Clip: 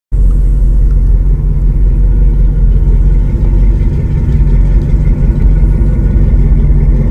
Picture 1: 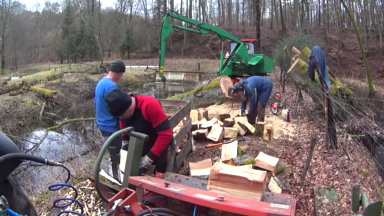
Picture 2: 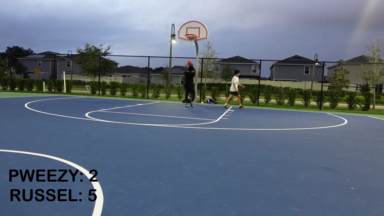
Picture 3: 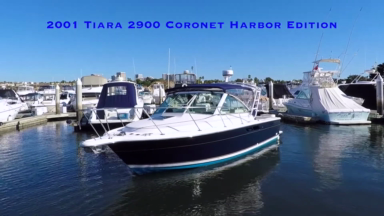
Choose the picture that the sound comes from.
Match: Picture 3